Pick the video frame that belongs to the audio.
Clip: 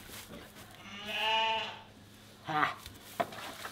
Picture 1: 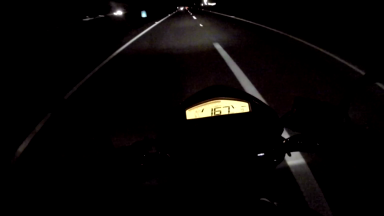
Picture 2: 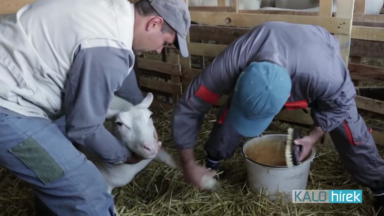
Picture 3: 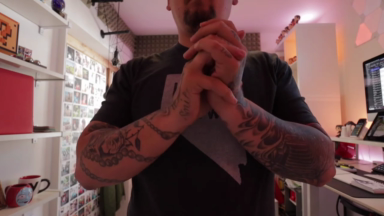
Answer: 2